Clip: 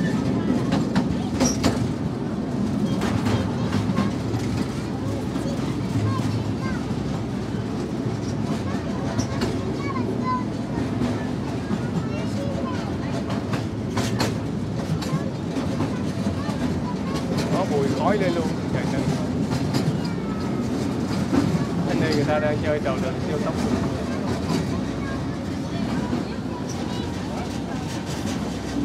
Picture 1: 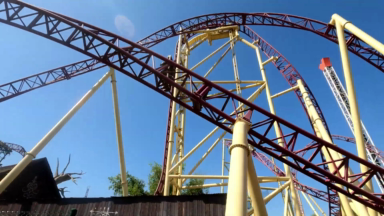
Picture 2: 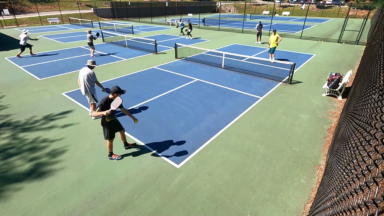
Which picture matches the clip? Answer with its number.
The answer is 1